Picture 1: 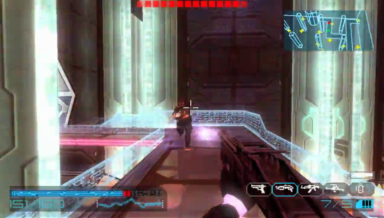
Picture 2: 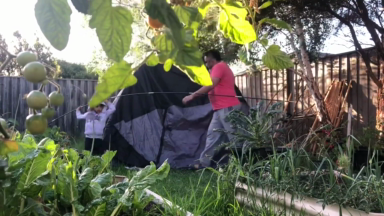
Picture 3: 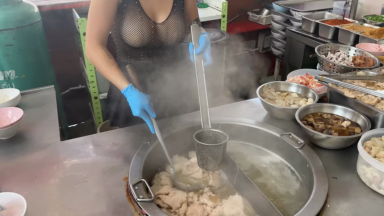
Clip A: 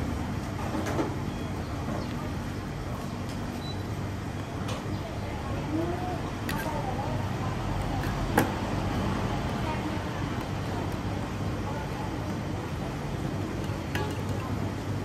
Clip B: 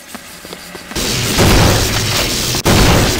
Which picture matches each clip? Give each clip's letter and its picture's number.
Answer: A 3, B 1